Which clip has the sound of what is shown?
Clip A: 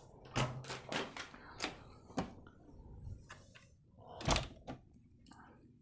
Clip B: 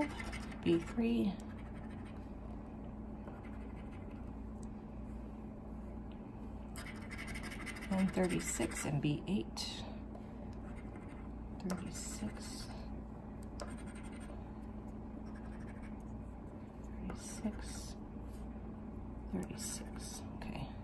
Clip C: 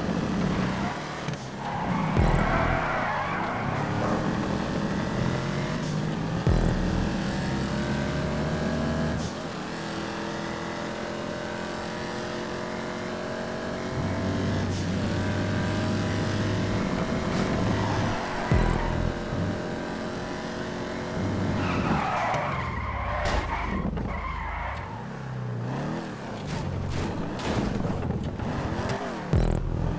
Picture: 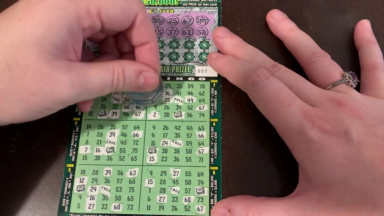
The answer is B